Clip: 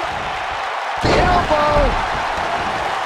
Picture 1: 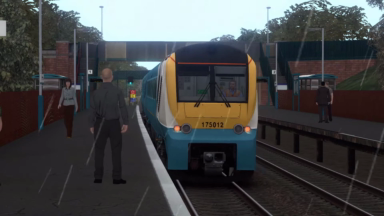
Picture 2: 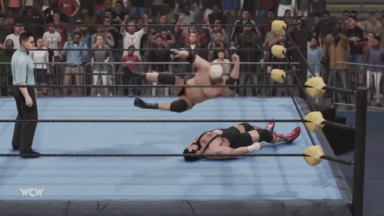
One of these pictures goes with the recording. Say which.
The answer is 2